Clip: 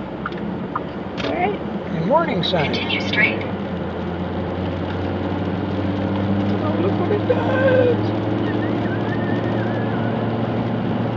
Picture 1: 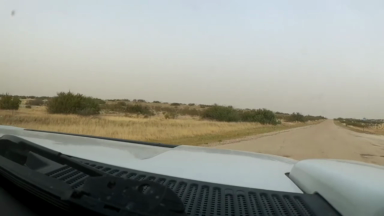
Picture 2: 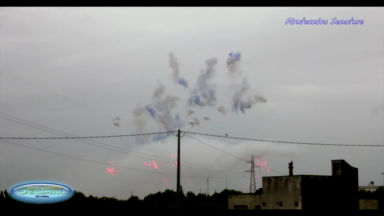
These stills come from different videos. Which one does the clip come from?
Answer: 1